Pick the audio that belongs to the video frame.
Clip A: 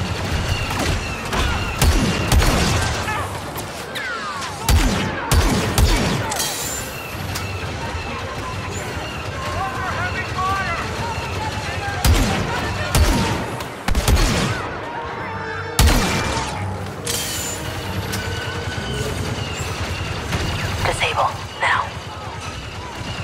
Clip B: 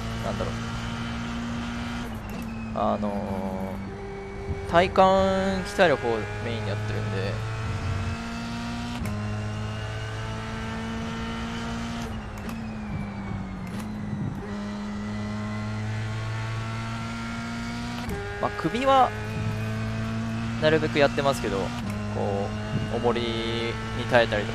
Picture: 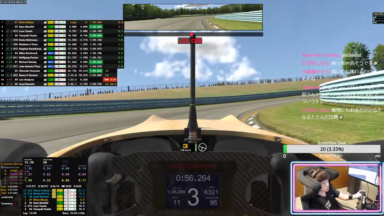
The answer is B